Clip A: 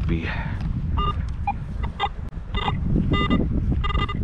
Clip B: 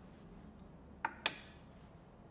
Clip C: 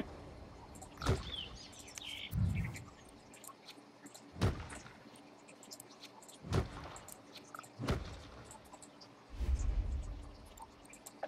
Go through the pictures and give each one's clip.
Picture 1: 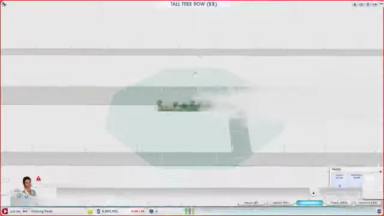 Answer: C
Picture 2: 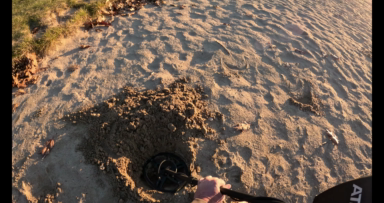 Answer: A